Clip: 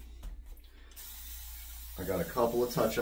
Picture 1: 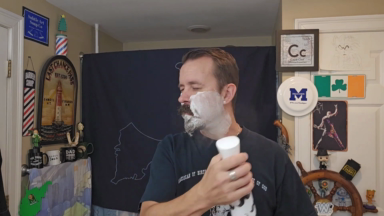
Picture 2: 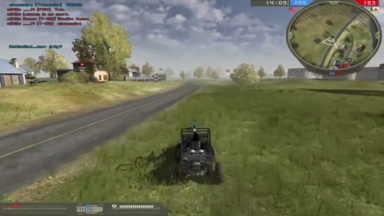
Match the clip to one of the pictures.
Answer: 1